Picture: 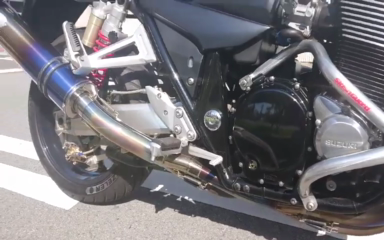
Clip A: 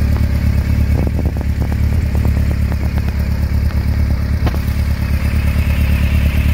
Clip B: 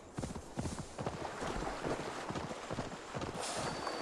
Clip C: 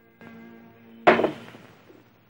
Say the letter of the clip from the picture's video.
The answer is A